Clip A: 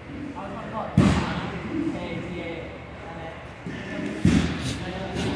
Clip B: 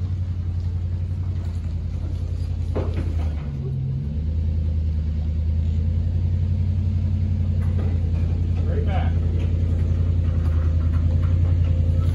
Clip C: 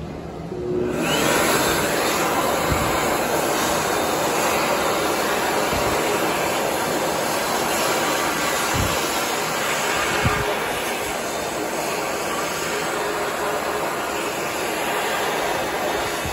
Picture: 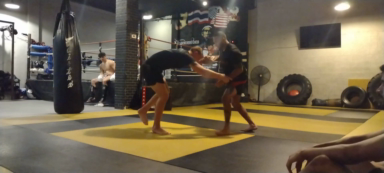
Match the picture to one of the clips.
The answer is A